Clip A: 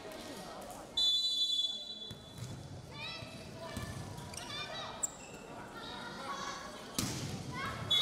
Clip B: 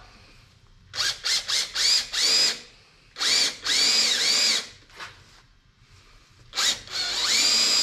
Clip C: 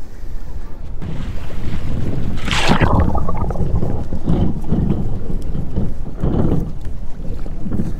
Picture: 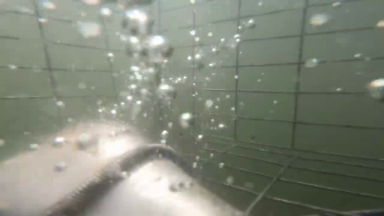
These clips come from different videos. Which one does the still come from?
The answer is C